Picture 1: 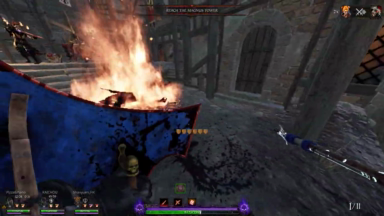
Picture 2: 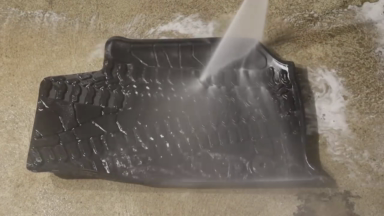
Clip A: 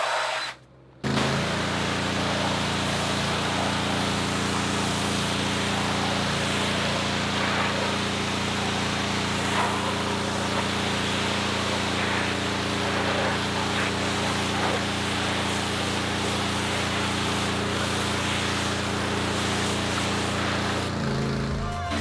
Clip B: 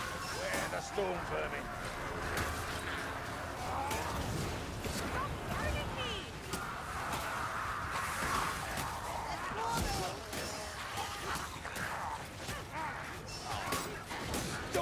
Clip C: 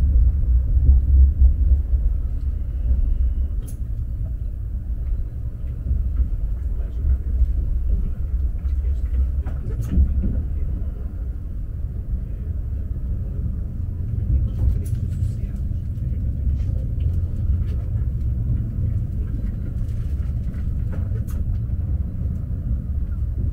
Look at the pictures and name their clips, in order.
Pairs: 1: B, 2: A